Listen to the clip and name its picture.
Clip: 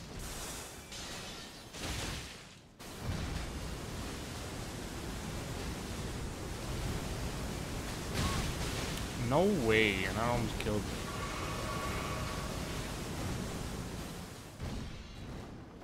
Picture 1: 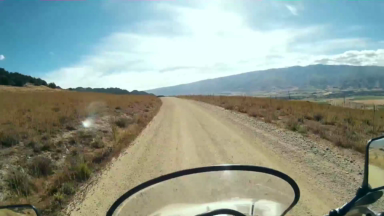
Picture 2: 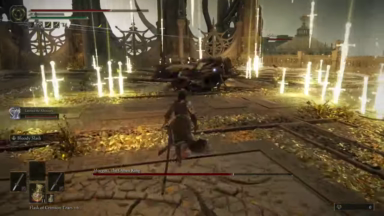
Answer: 2